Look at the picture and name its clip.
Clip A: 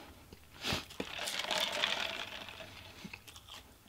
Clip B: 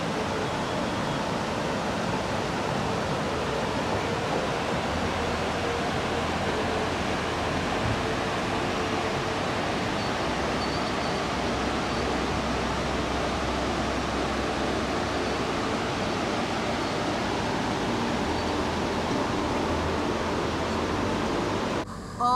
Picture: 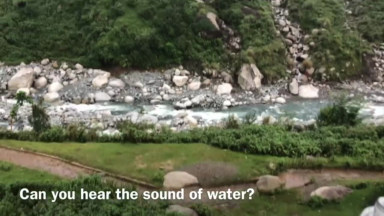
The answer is B